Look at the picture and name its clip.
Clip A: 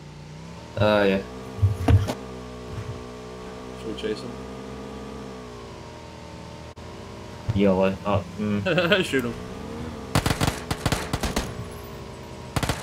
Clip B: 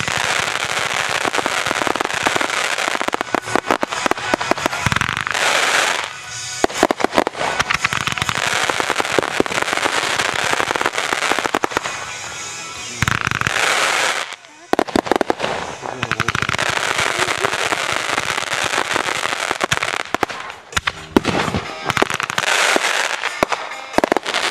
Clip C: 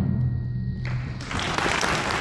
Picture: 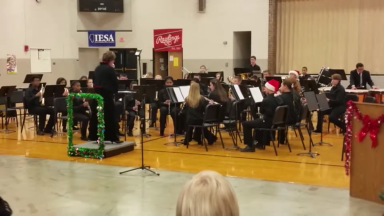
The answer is C